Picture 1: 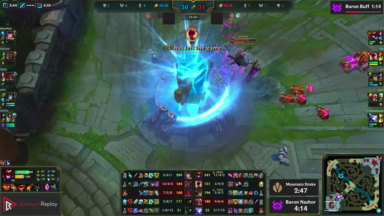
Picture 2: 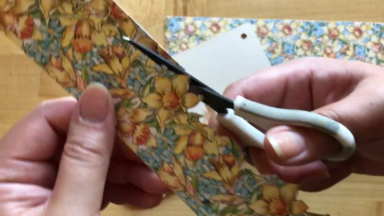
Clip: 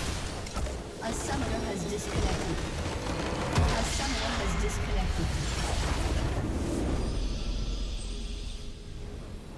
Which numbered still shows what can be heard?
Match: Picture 1